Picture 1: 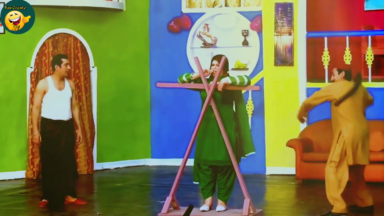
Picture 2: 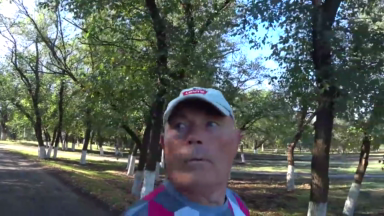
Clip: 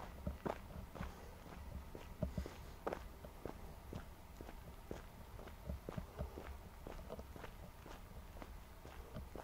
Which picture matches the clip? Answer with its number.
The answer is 2